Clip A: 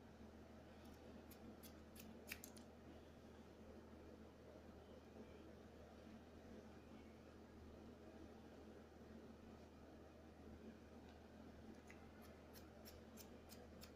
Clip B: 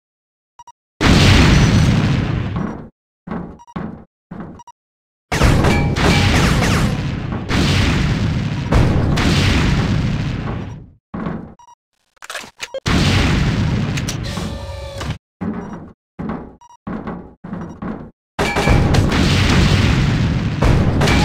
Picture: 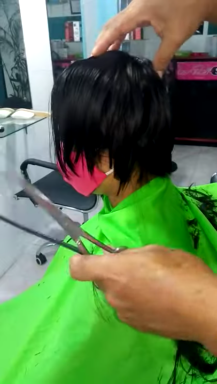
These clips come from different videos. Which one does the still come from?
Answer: A